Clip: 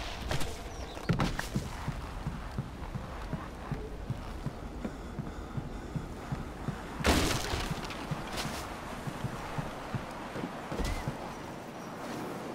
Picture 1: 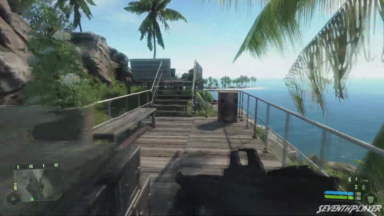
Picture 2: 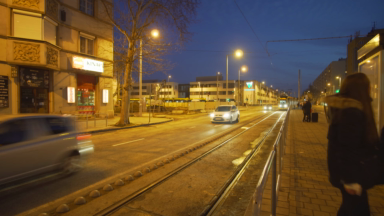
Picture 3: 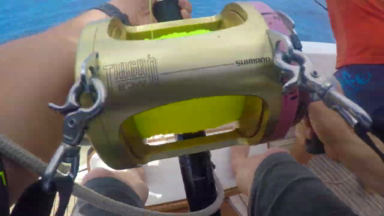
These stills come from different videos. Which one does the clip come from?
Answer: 1